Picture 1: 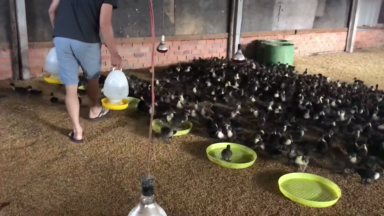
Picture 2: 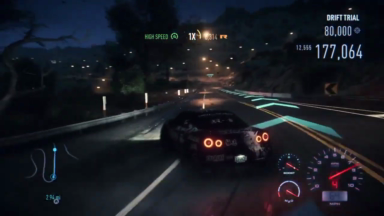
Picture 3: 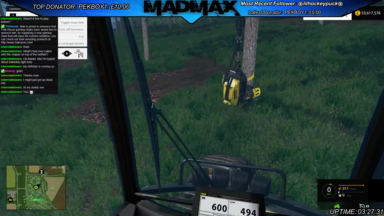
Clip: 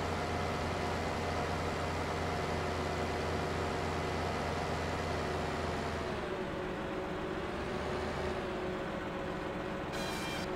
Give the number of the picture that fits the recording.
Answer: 3